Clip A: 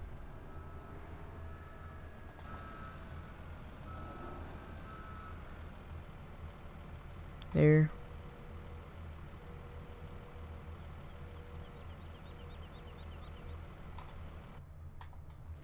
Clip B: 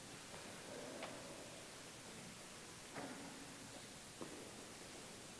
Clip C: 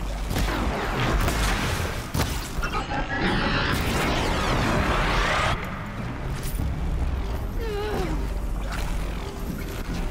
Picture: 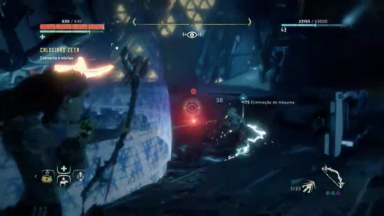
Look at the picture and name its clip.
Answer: C